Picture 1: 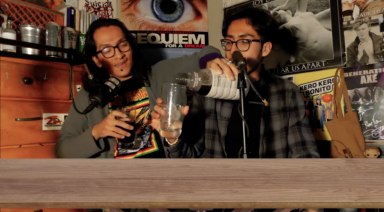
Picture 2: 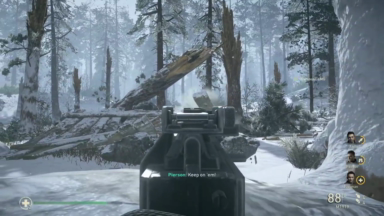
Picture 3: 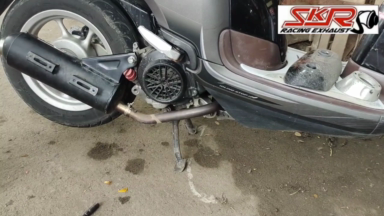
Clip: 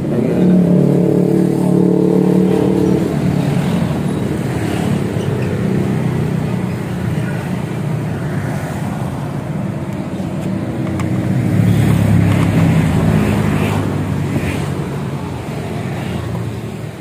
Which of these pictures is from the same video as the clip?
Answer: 3